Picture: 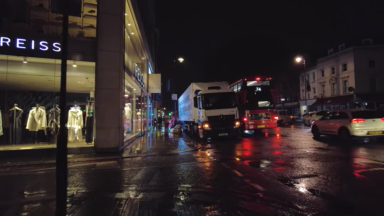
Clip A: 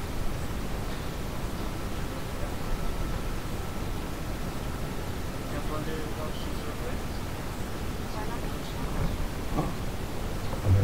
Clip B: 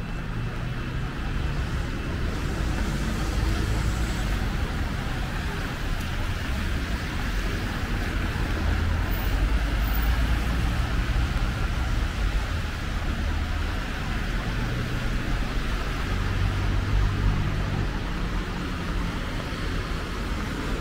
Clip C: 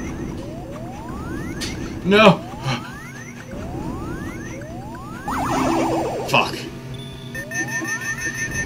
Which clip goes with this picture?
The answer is B